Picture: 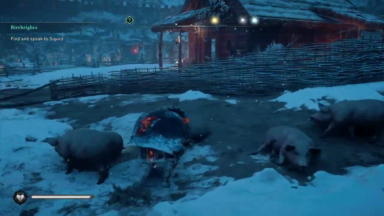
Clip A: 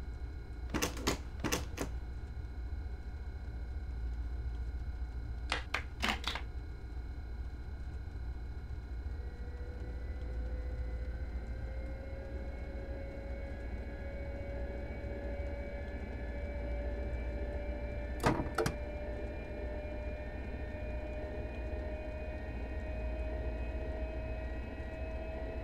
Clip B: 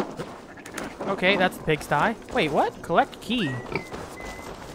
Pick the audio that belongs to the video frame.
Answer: B